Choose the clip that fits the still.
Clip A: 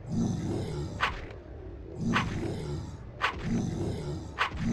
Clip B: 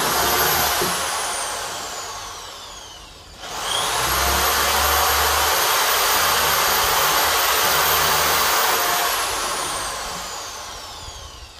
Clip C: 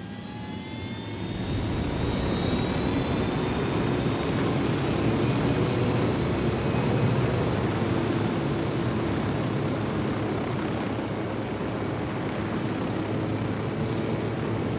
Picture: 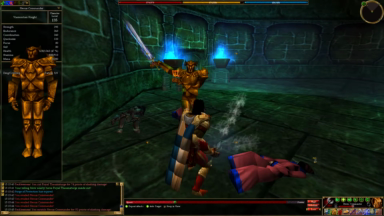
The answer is A